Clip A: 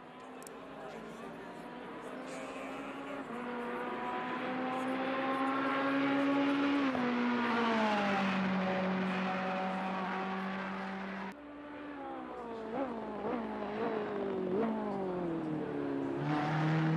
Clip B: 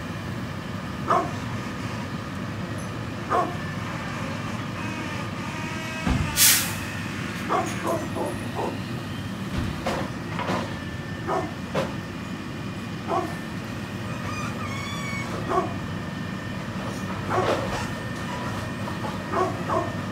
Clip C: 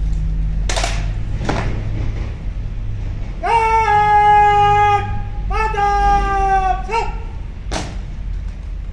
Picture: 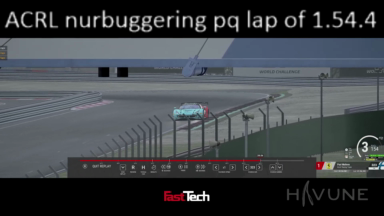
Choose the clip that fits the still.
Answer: A